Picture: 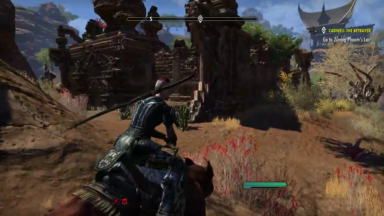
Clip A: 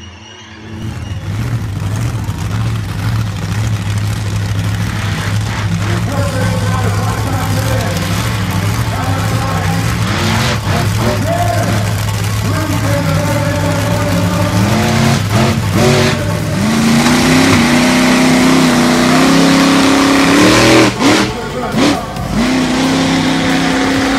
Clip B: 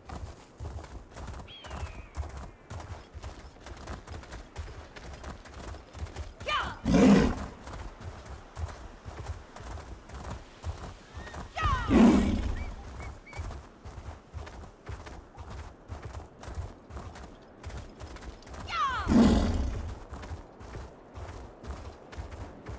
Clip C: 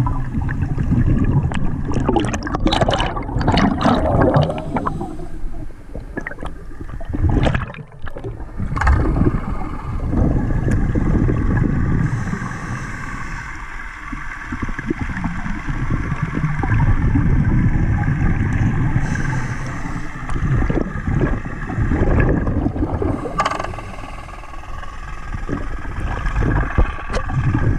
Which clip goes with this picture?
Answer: B